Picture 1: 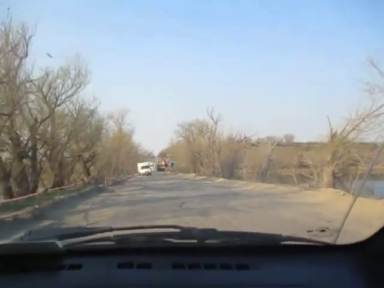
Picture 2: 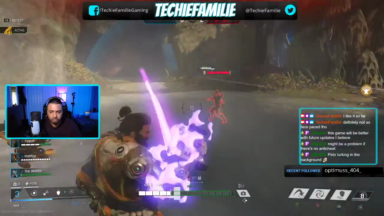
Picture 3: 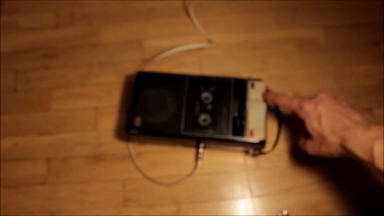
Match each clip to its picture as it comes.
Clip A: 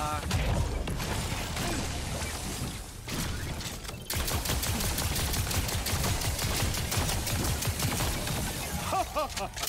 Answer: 2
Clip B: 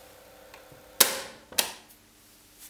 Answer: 3